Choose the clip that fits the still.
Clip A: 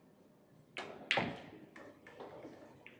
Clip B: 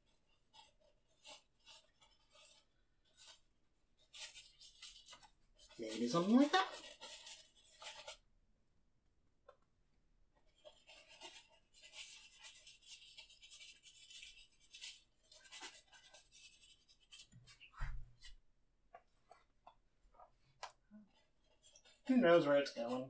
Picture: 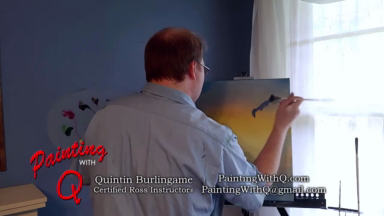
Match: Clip B